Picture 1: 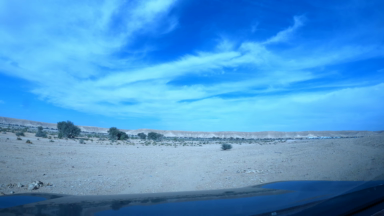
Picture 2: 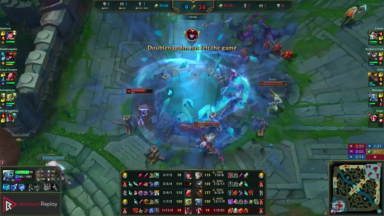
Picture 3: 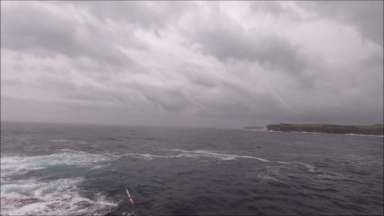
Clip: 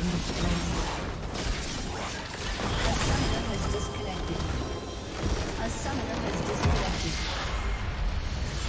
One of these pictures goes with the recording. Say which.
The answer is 2